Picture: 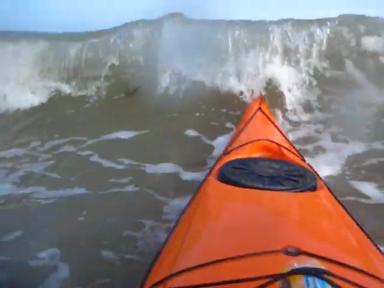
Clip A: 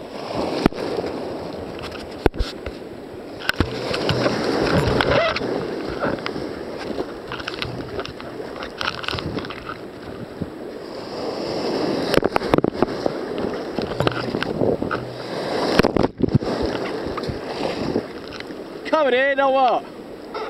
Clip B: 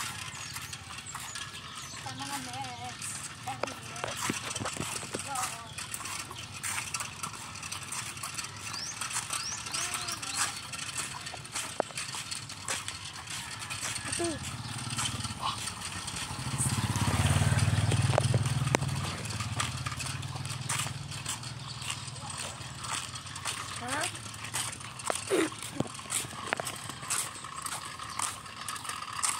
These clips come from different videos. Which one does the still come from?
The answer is A